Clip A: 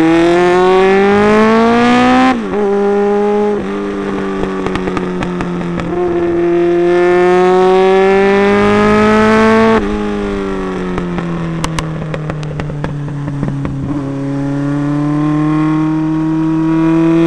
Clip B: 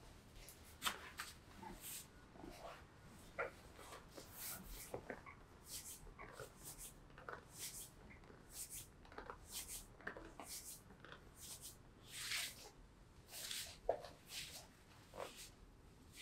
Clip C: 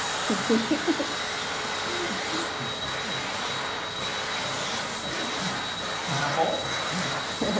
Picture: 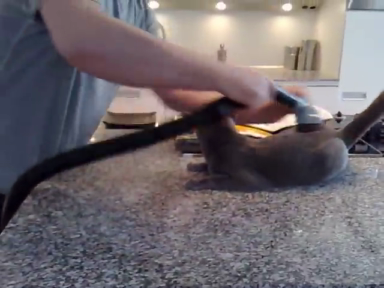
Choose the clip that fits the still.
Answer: C